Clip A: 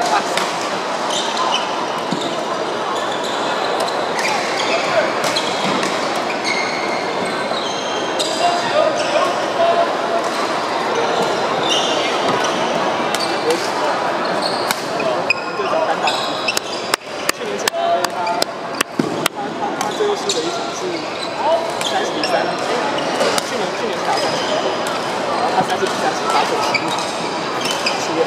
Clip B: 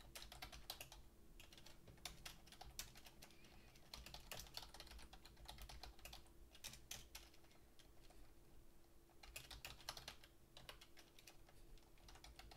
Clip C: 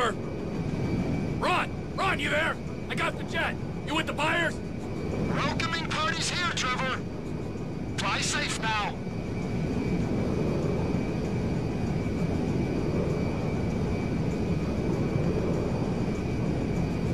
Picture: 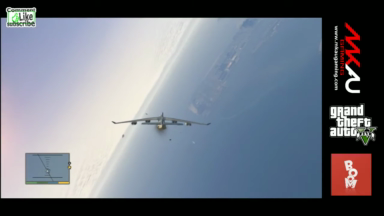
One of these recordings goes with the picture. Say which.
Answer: C